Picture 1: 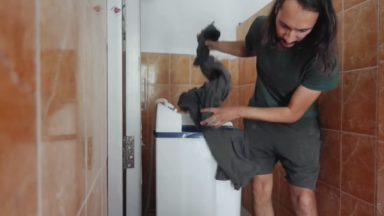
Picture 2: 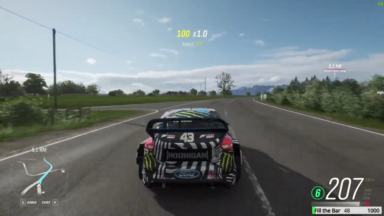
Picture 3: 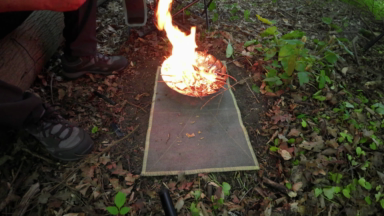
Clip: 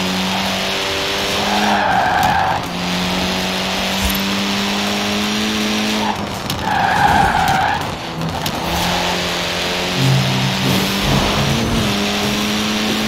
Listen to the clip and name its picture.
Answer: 2